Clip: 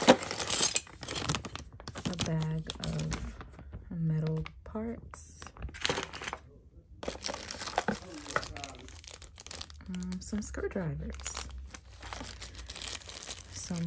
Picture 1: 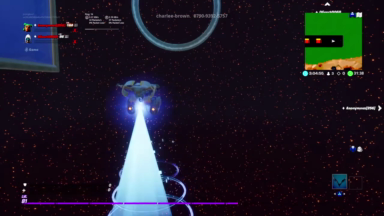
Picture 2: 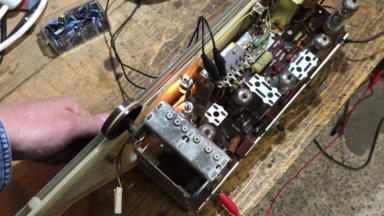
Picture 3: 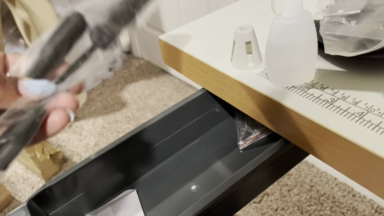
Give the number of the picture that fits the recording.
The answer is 3